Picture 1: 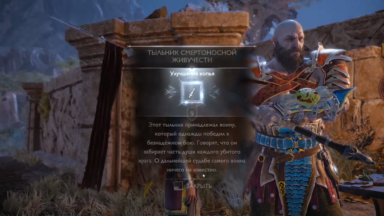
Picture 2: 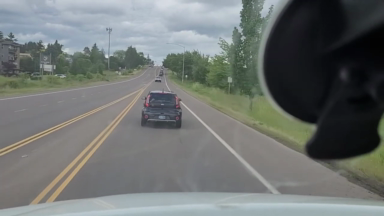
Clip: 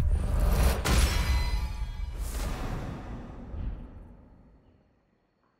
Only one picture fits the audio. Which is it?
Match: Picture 1